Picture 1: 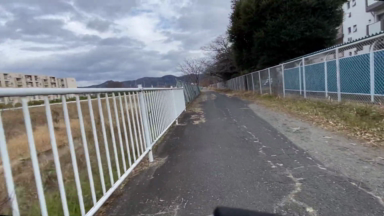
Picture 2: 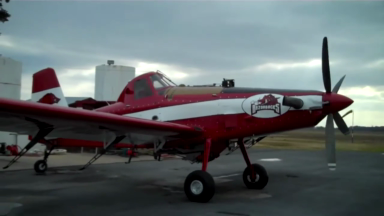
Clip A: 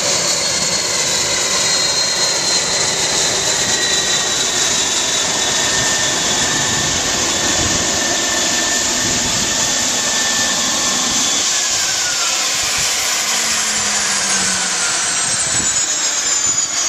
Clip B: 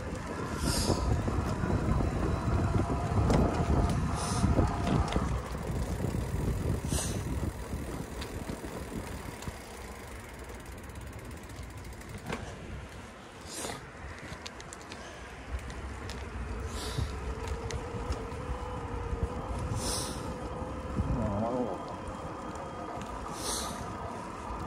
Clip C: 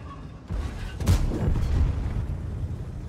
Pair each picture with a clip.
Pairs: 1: B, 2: A